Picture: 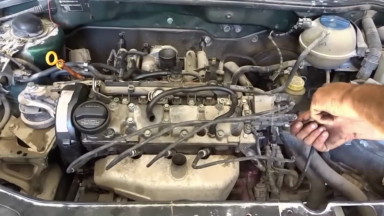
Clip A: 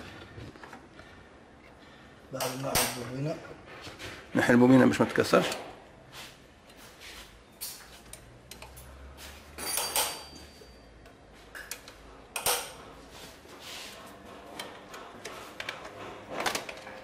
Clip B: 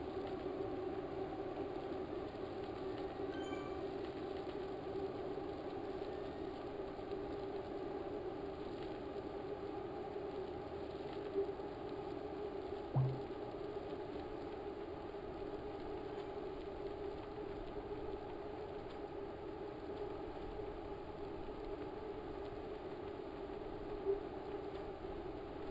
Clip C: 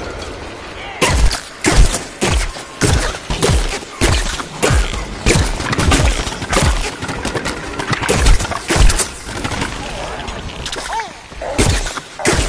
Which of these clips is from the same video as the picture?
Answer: A